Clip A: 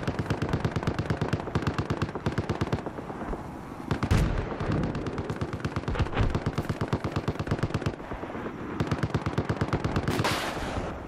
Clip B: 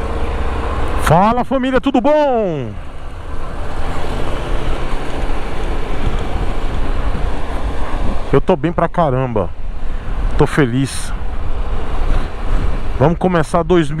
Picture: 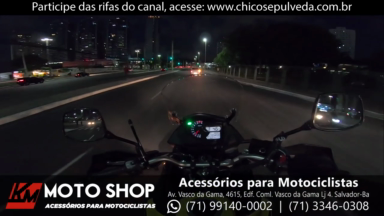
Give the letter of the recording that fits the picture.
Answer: B